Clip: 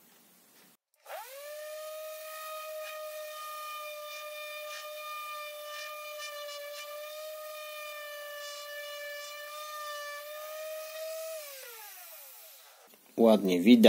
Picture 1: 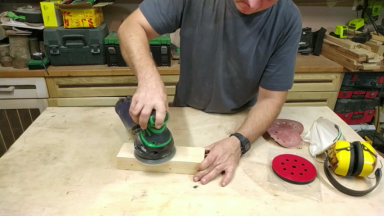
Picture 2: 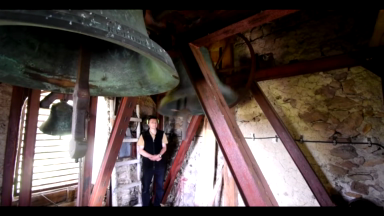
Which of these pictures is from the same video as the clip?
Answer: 1